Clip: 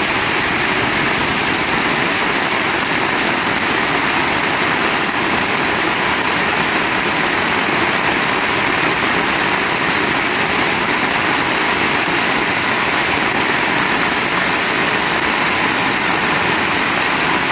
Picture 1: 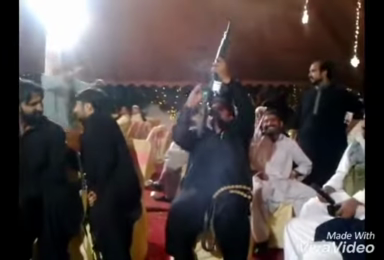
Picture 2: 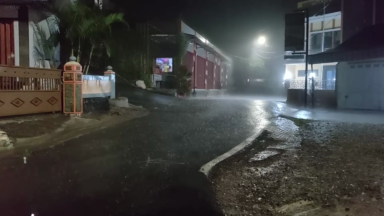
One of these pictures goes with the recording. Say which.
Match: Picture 2